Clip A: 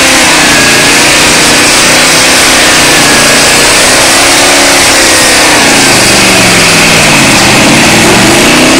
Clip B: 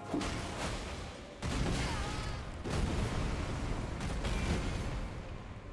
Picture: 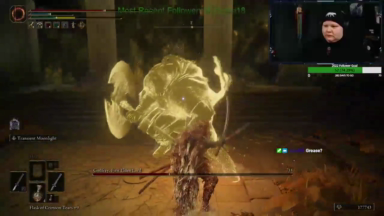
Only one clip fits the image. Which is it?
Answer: B